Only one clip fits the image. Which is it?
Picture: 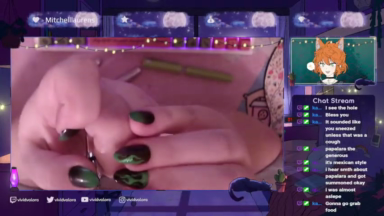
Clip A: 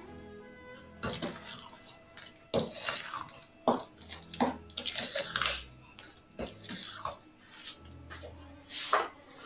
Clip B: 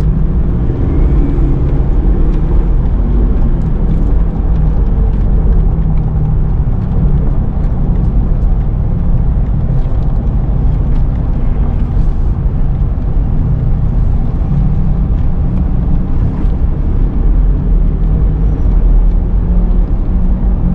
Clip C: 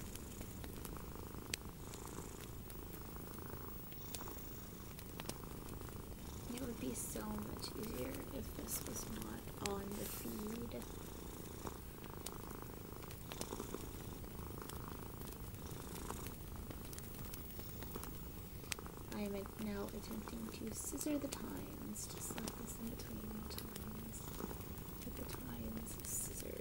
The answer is C